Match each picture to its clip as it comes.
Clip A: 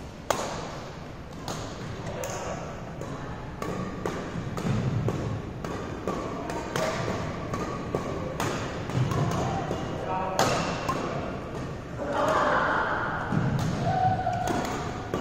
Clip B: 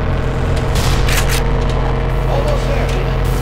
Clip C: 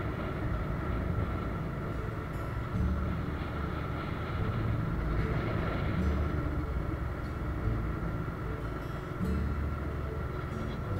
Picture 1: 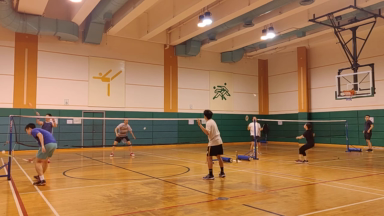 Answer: A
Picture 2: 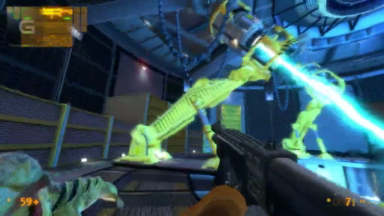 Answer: B